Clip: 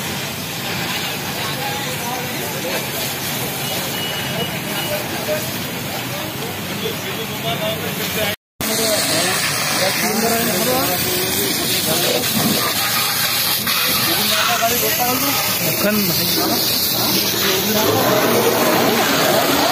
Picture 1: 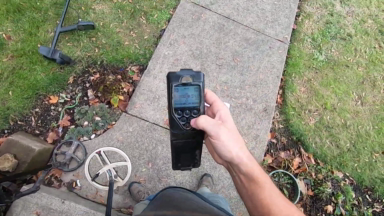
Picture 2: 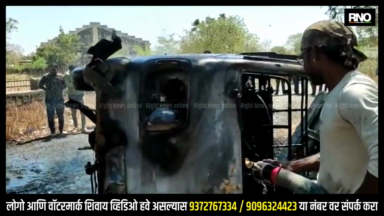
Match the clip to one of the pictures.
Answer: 2